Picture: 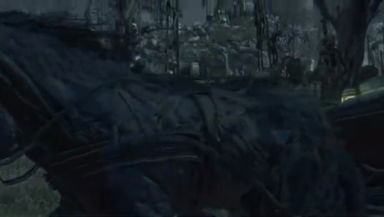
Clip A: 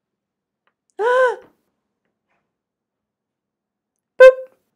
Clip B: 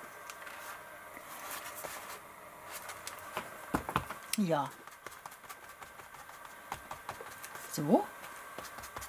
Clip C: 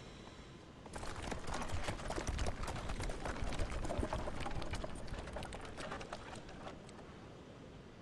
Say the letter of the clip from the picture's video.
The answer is C